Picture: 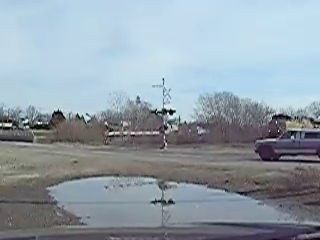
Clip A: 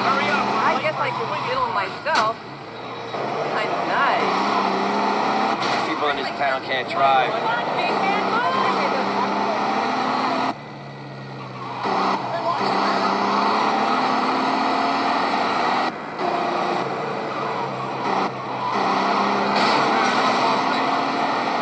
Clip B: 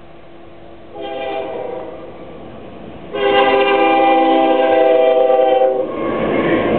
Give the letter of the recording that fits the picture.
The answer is B